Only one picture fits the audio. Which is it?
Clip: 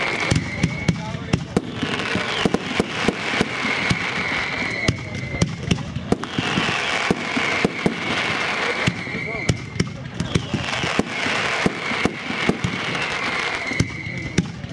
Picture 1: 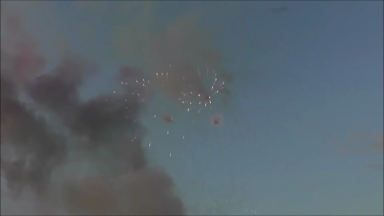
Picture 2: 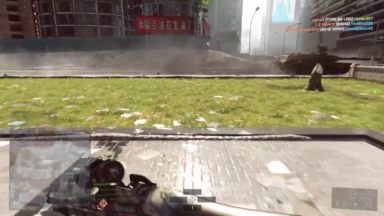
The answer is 1